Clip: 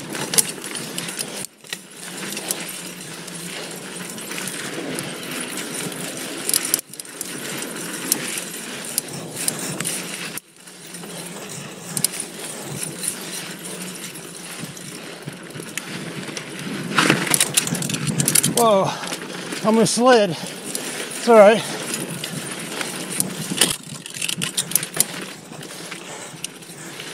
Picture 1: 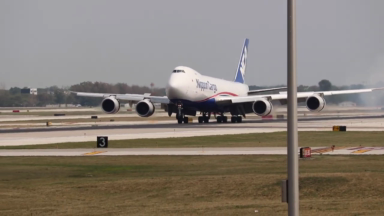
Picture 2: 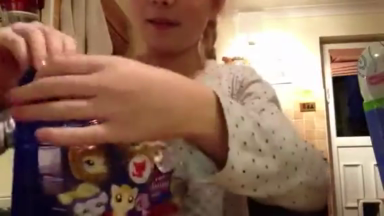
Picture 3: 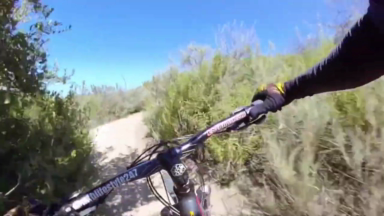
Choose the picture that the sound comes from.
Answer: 3